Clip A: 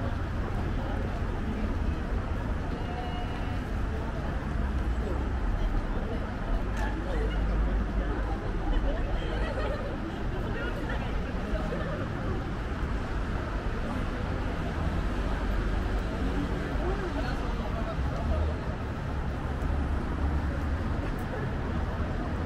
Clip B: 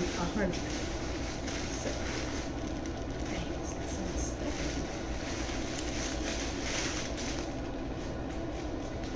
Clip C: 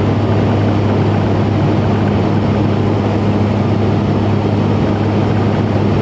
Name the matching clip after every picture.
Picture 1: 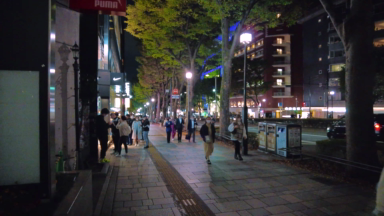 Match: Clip A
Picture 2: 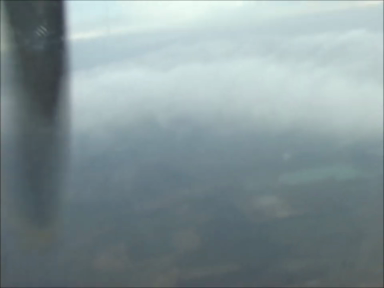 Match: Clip C